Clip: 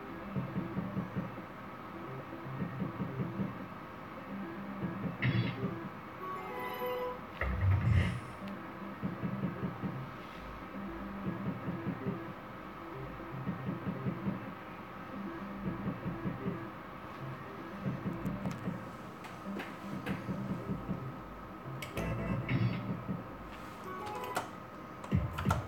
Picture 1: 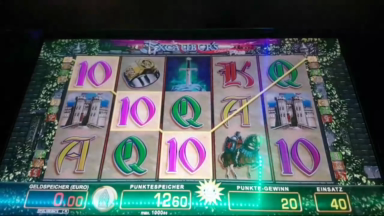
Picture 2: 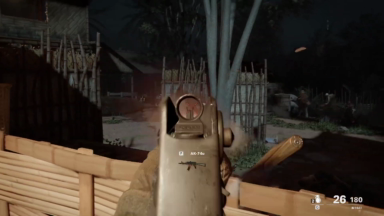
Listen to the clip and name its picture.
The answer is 1